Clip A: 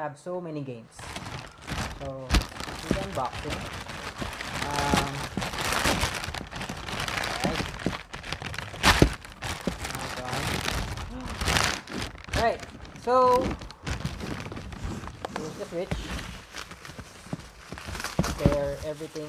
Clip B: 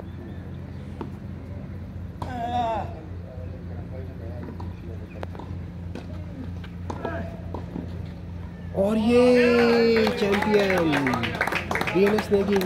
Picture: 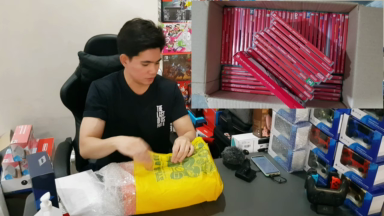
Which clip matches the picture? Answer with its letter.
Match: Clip A